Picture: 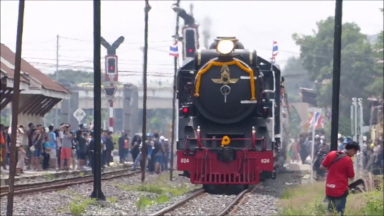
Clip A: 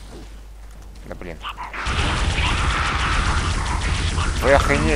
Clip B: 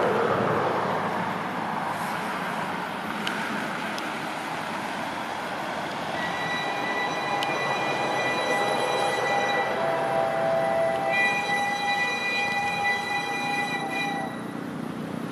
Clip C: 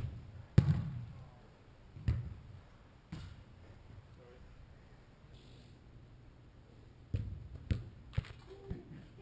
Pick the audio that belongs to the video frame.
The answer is B